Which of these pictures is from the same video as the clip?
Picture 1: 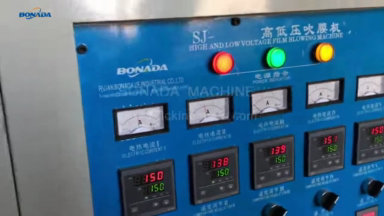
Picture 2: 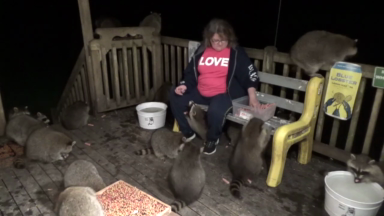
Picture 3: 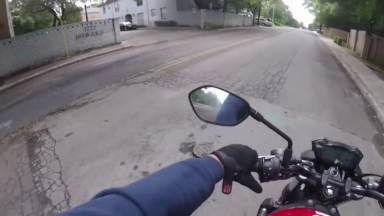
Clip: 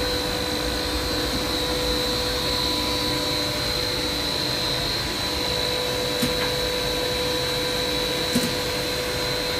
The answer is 1